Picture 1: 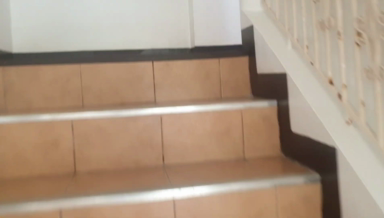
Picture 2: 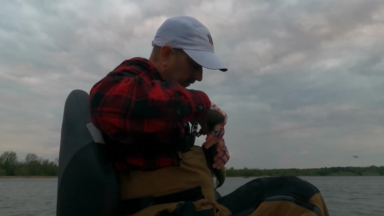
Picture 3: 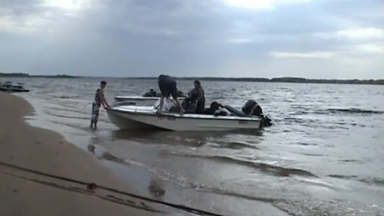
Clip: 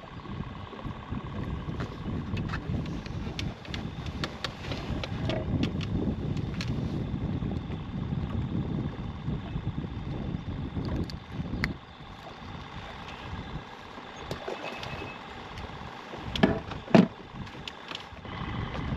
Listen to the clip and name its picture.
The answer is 2